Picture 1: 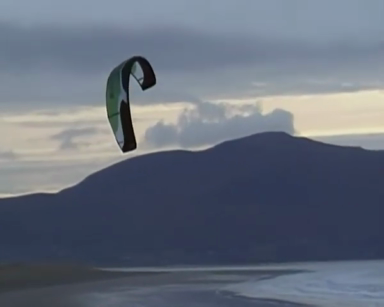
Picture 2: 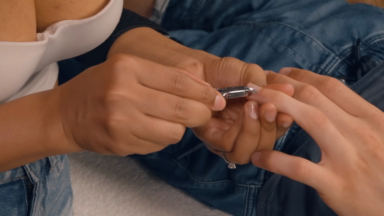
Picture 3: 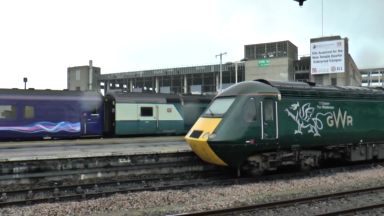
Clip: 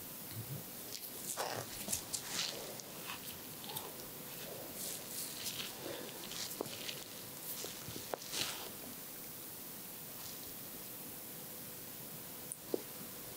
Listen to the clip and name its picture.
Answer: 2